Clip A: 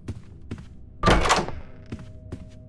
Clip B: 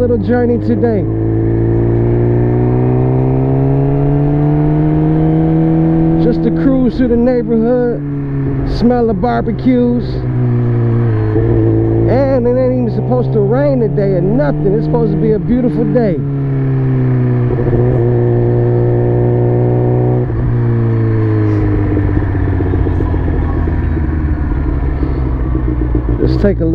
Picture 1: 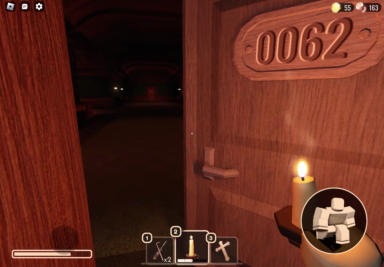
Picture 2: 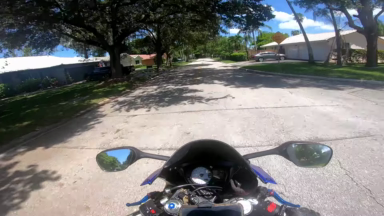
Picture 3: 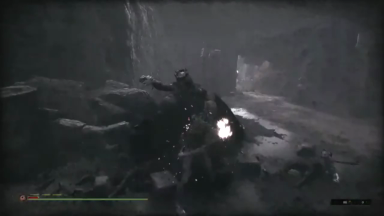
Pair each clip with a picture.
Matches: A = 1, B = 2